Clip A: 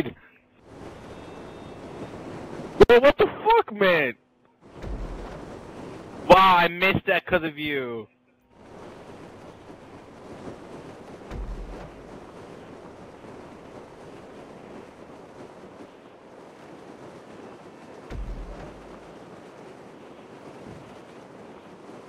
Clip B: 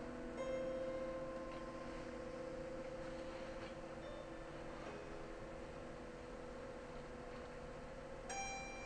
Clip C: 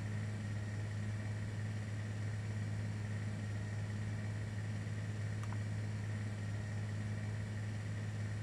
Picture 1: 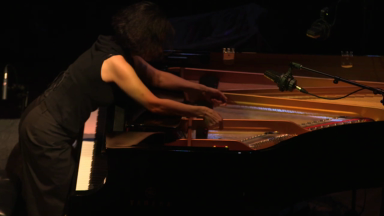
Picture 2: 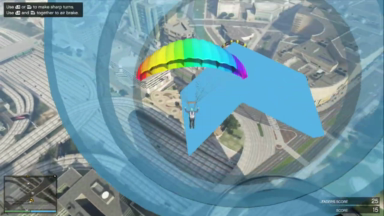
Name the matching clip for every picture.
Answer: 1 B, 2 A